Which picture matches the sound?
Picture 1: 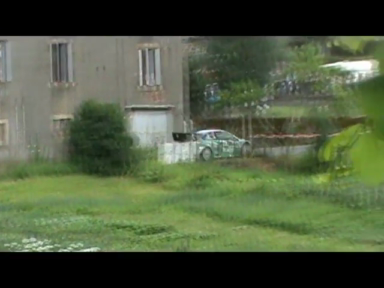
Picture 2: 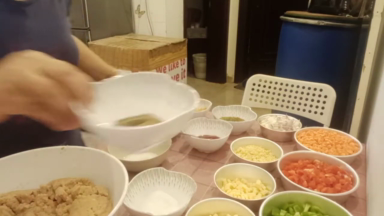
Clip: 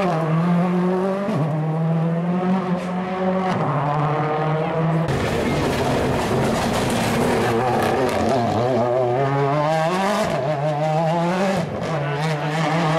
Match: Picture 1